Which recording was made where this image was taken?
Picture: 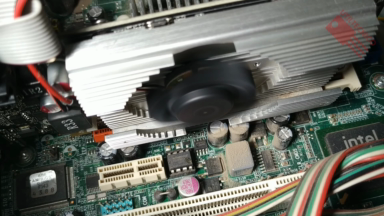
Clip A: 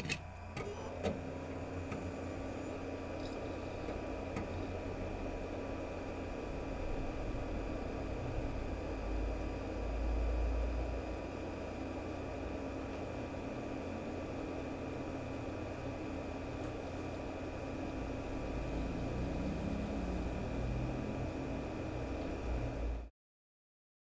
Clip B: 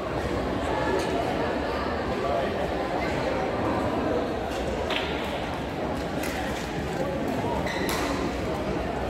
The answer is A